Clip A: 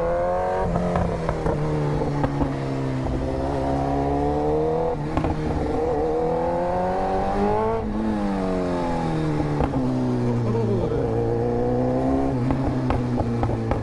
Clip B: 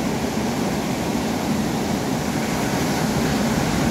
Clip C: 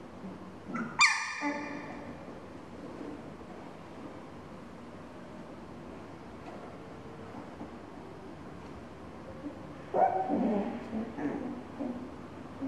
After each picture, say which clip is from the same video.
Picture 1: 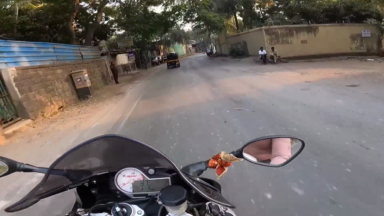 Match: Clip A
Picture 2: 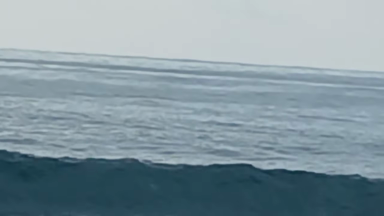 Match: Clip B